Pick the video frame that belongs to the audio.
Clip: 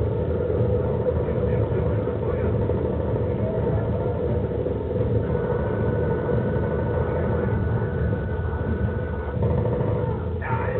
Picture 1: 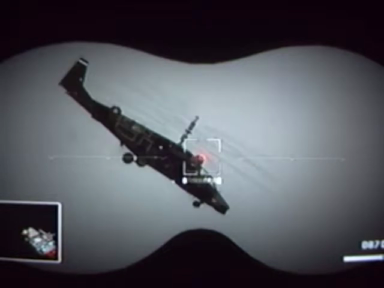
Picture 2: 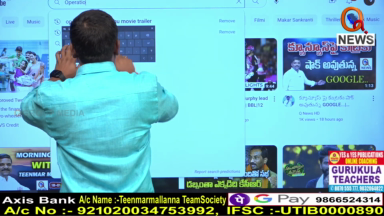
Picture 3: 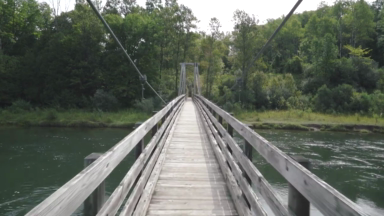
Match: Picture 1